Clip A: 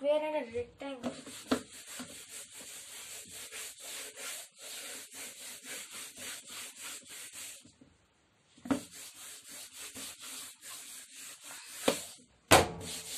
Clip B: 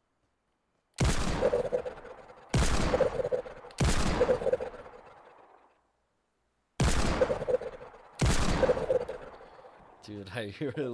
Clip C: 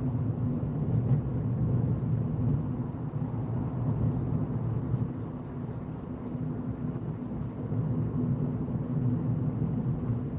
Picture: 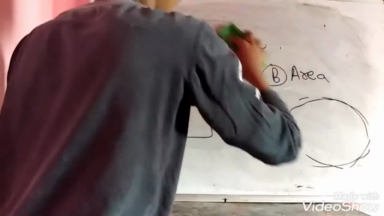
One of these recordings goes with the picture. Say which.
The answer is A